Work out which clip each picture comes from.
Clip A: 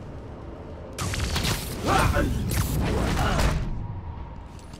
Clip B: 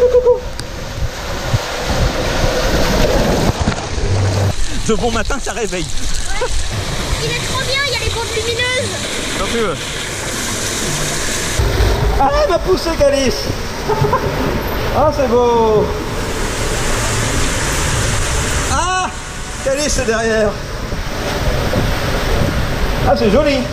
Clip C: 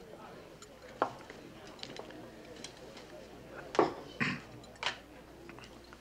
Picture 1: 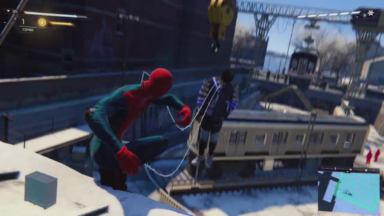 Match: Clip A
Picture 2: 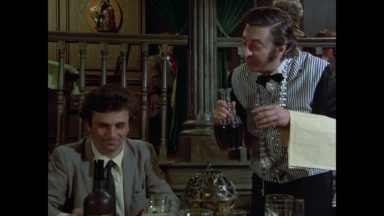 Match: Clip C